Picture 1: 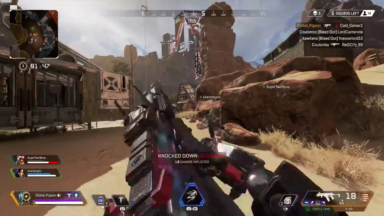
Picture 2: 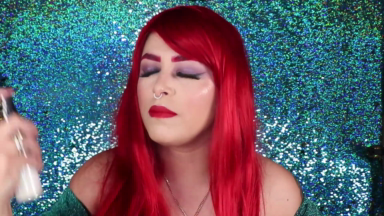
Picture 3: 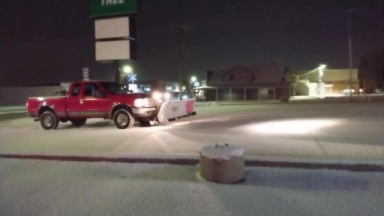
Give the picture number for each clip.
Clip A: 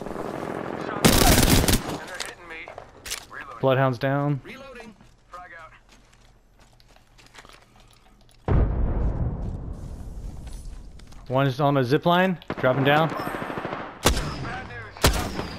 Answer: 1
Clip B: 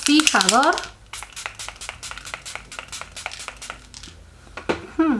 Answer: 2